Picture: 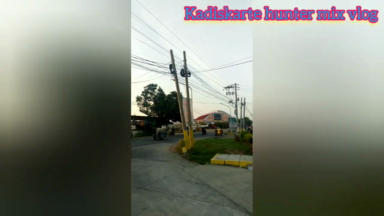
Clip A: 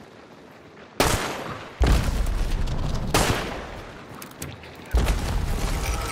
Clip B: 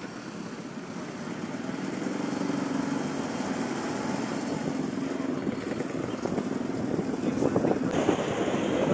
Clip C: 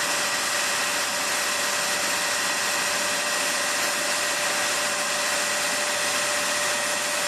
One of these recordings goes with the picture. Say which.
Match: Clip B